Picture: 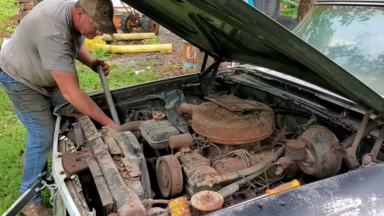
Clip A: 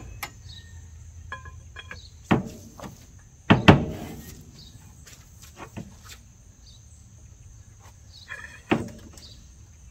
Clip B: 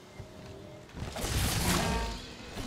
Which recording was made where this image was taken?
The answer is A